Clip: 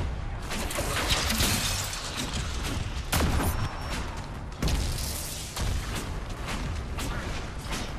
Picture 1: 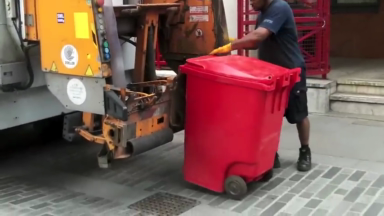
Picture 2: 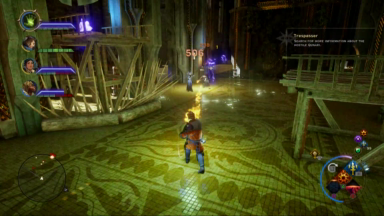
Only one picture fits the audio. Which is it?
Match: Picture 2